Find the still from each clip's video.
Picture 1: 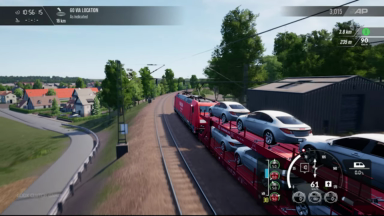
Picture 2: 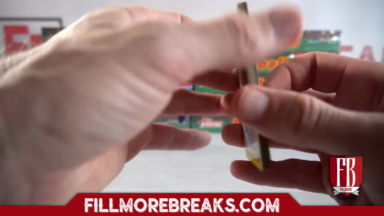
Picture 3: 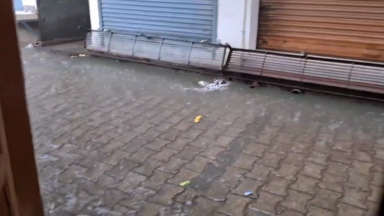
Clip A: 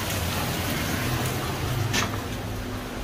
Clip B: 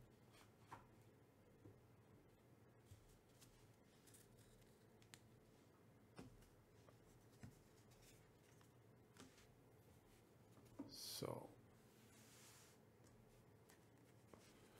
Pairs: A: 3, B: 2